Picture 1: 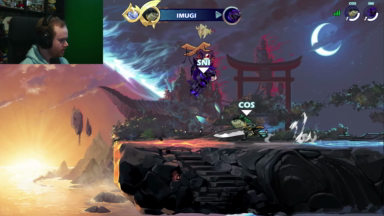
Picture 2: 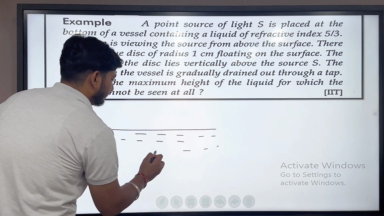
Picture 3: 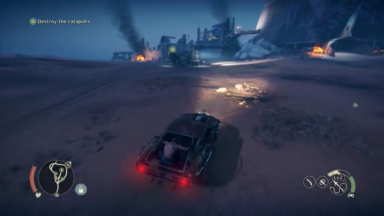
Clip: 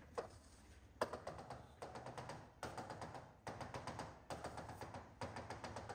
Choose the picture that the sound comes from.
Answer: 2